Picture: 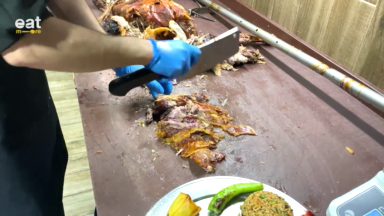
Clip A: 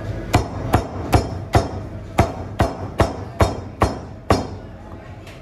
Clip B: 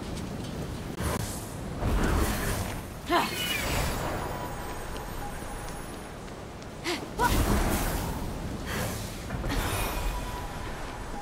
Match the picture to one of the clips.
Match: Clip A